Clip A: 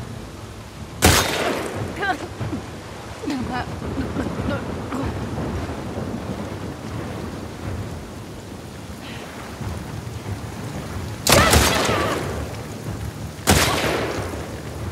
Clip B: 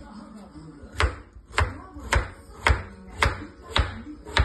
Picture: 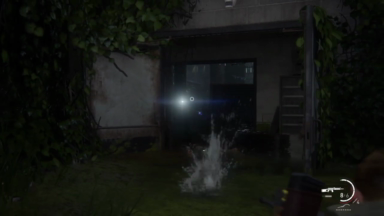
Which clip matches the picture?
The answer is A